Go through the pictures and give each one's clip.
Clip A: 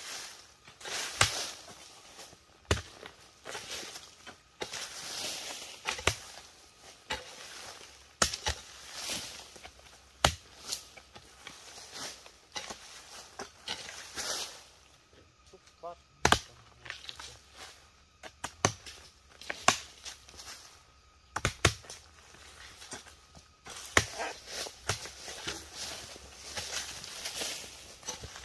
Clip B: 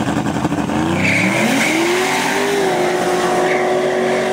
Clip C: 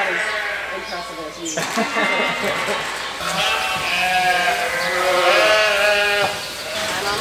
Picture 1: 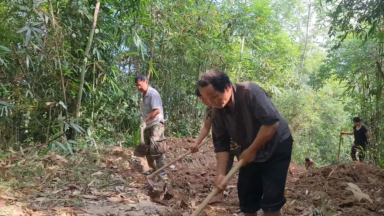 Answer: A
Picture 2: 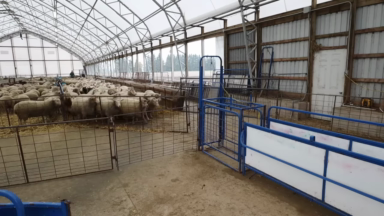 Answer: C